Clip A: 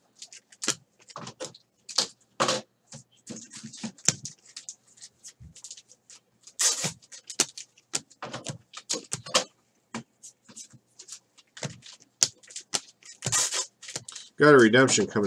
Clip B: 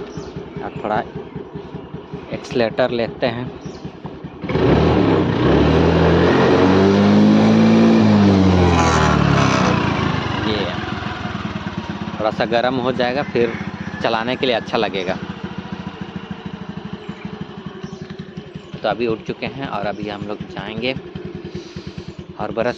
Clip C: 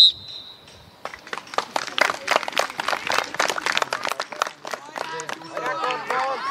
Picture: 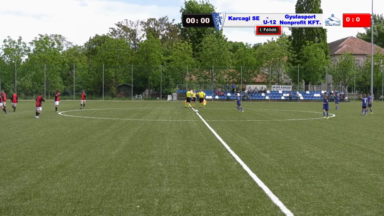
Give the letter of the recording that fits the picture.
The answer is C